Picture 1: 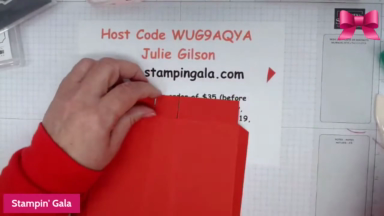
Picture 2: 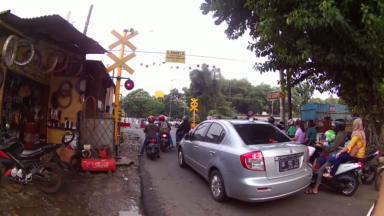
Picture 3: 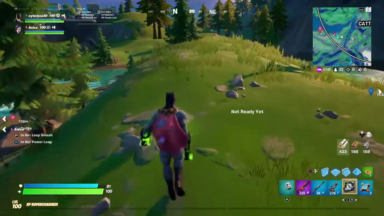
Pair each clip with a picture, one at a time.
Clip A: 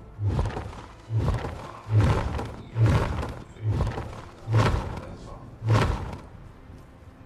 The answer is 3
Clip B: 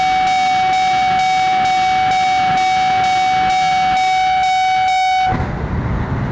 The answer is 2